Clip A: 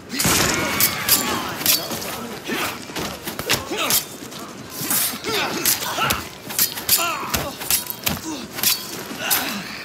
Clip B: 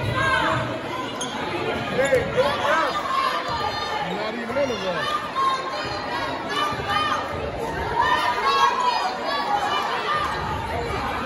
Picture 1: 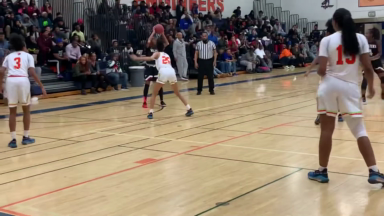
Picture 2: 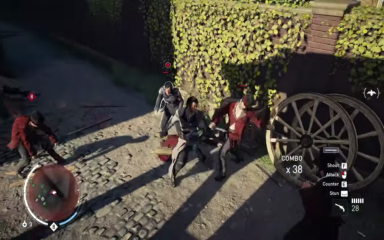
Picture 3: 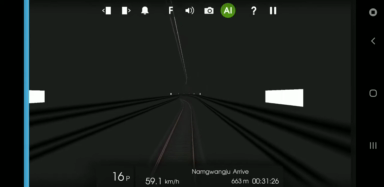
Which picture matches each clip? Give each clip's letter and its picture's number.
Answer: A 2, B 1